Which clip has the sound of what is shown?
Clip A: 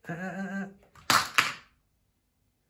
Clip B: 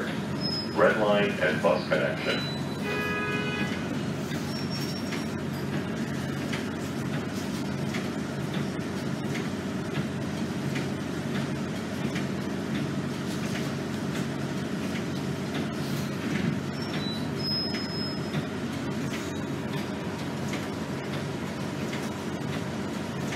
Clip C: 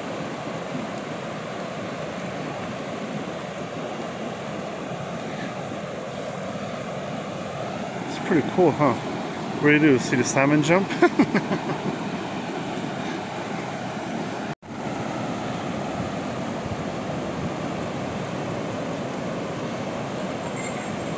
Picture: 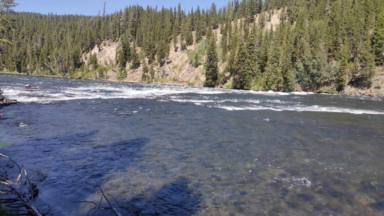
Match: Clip C